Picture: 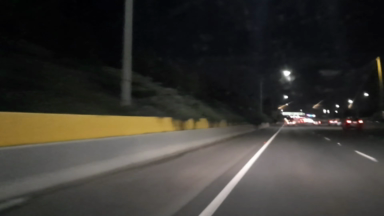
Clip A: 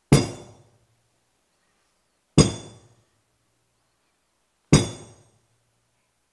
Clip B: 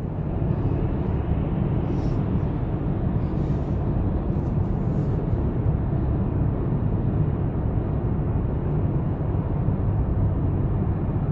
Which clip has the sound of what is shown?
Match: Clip B